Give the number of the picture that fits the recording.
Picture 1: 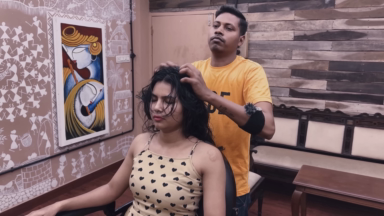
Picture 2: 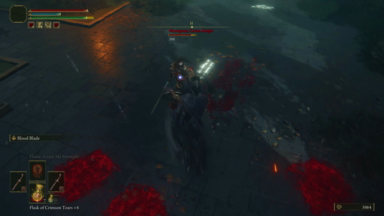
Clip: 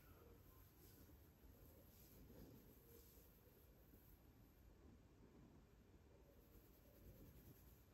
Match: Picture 1